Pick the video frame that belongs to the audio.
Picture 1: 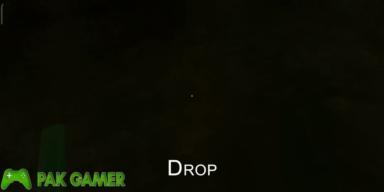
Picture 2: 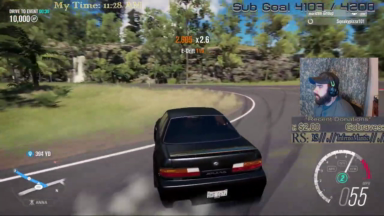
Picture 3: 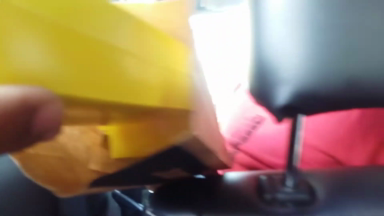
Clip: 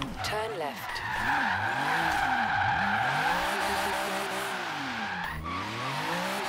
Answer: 2